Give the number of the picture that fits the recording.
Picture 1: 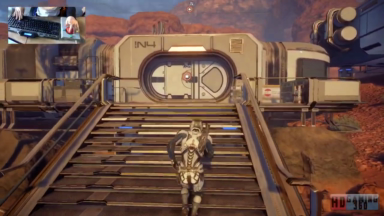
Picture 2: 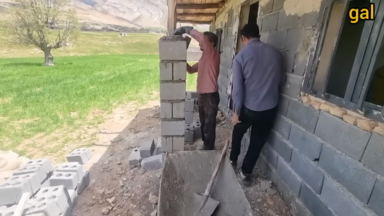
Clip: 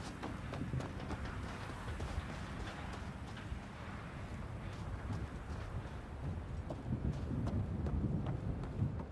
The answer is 1